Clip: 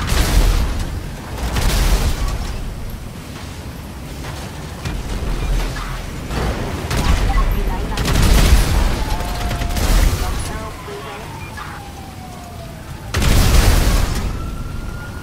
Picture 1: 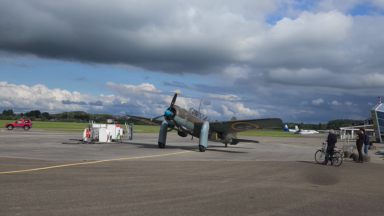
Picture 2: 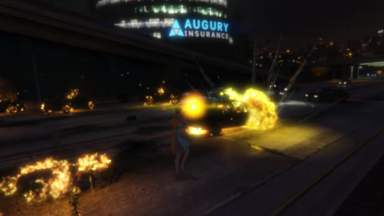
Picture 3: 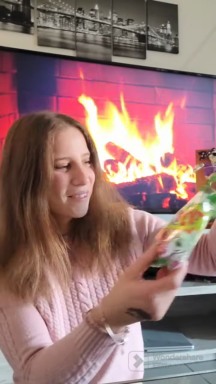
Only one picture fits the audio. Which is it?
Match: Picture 2